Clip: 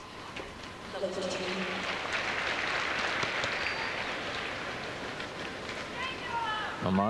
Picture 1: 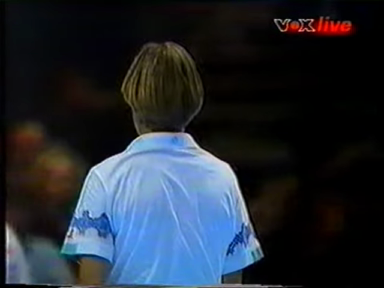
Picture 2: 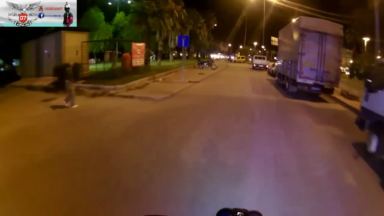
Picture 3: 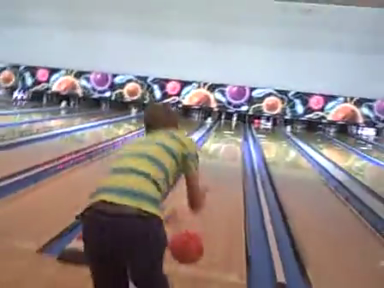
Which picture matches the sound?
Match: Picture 1